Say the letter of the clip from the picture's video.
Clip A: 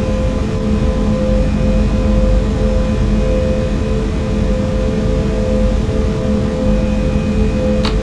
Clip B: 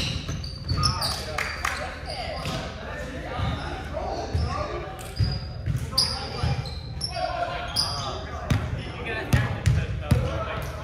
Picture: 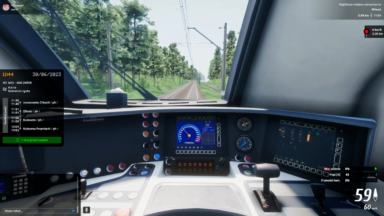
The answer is A